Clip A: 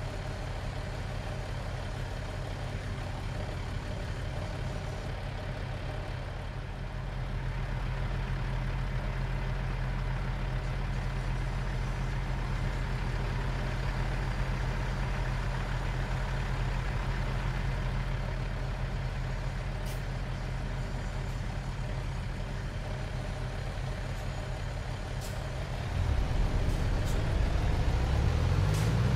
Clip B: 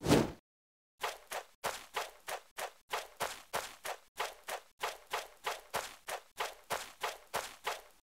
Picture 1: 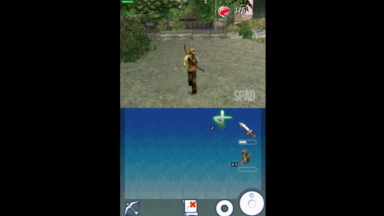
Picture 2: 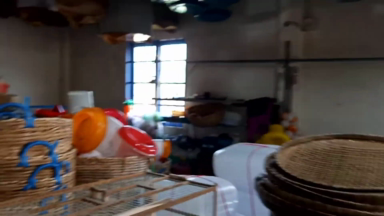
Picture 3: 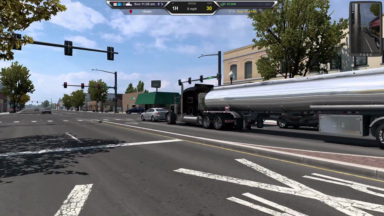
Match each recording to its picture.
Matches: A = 3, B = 1